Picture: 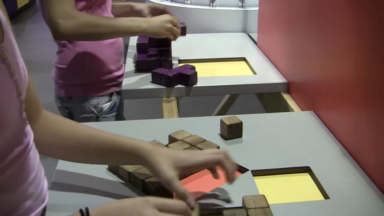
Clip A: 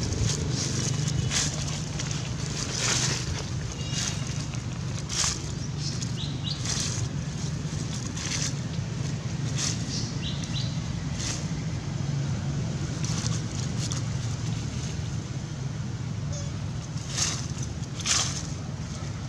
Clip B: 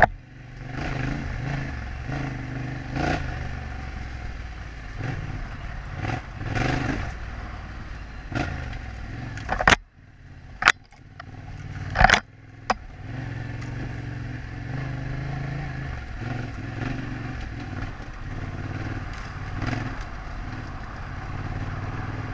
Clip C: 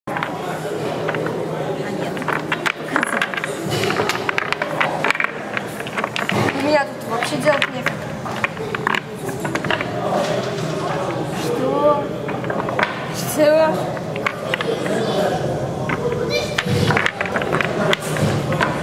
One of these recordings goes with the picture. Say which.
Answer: C